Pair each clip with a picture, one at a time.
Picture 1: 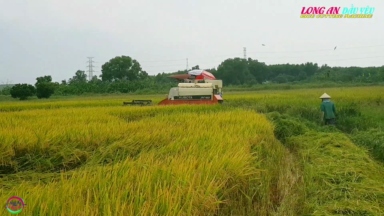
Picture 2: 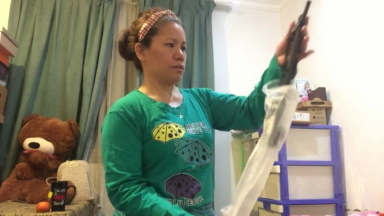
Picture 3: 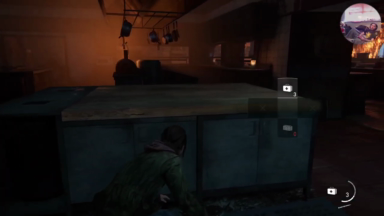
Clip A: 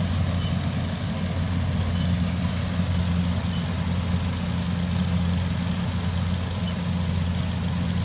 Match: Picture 1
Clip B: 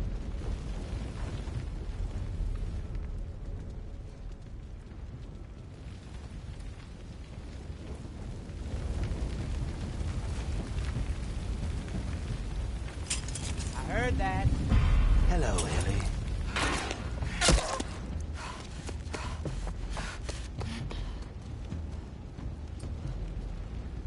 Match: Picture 3